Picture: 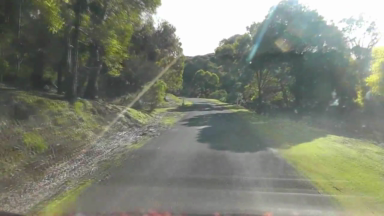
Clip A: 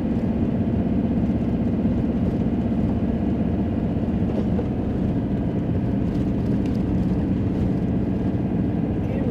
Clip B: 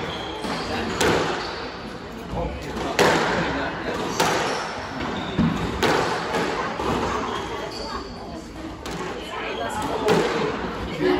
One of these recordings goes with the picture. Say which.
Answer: A